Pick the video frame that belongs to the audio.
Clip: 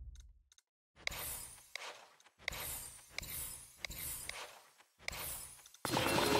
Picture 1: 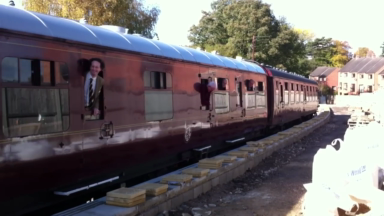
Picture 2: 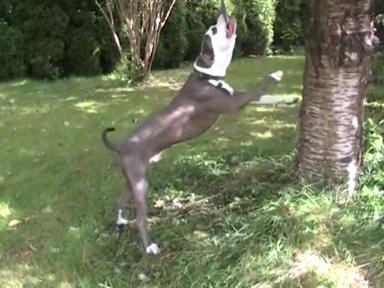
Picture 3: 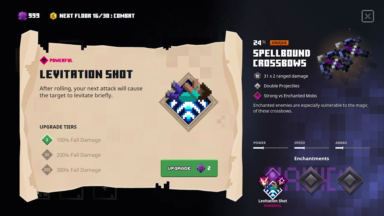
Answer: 3